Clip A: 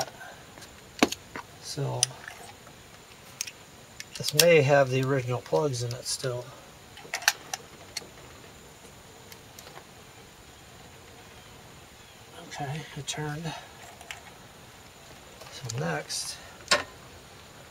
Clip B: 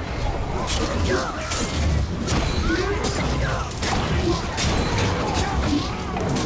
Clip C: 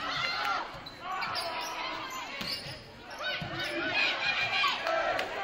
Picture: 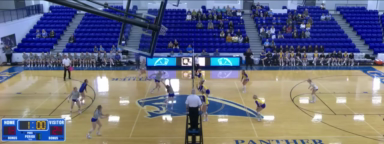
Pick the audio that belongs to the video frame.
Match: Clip C